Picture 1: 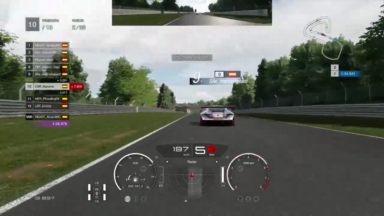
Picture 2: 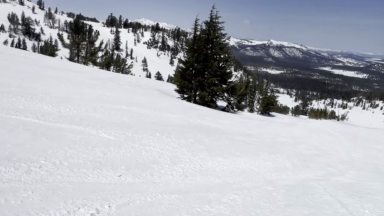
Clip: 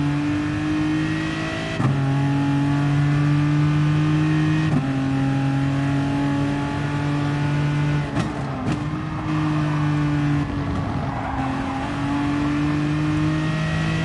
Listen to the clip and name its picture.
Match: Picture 1